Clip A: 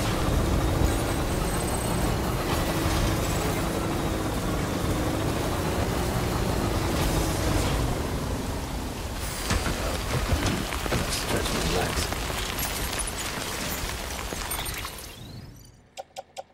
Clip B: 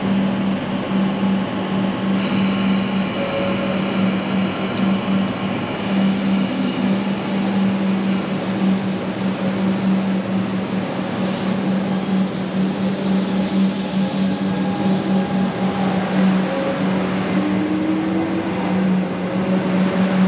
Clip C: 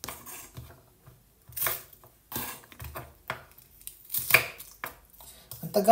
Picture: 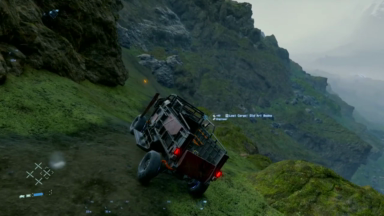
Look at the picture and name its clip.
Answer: A